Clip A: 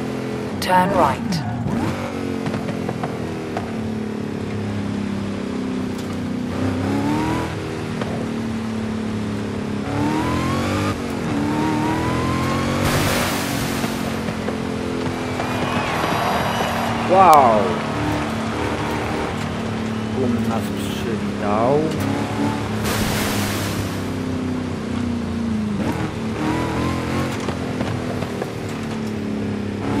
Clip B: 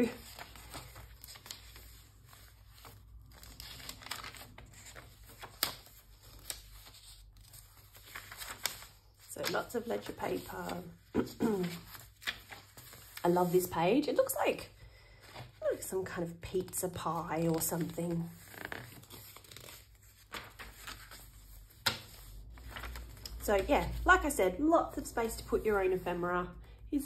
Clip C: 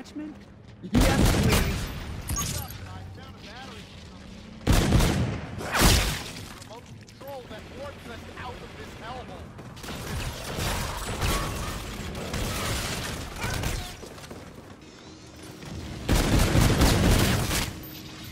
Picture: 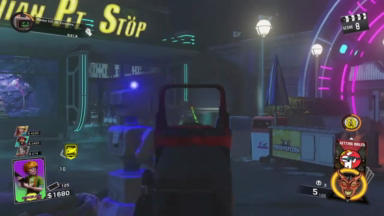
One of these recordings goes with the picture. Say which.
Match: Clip C